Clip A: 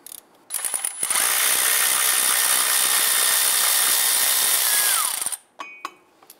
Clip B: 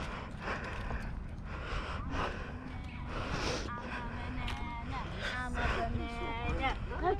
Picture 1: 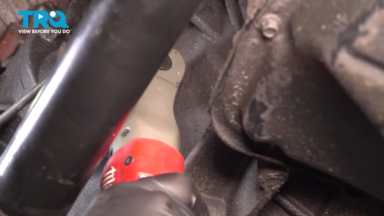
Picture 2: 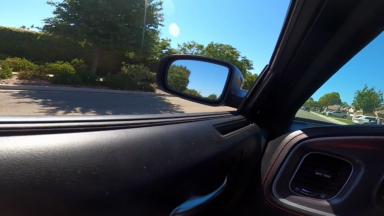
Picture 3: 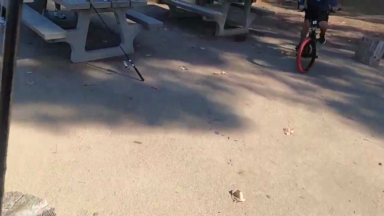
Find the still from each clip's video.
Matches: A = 1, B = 3